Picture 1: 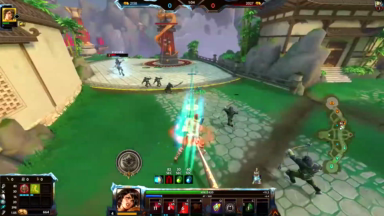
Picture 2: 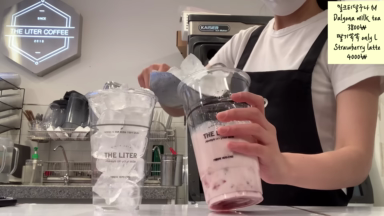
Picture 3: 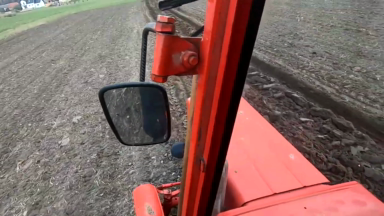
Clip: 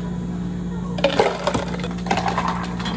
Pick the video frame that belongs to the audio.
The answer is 2